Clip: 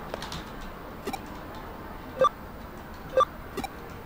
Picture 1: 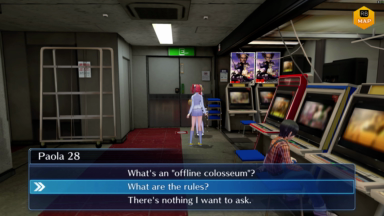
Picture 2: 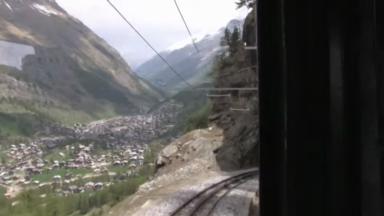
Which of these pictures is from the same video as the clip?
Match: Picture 1